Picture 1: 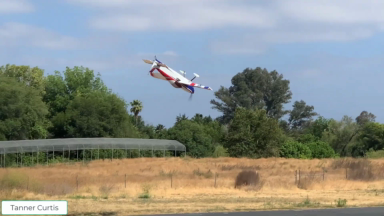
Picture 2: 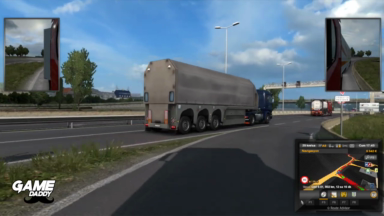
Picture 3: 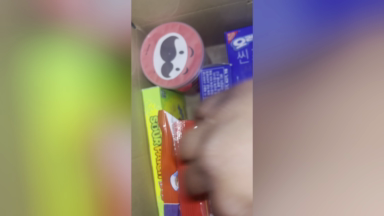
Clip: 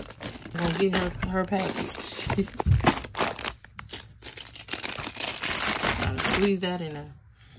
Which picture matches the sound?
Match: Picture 3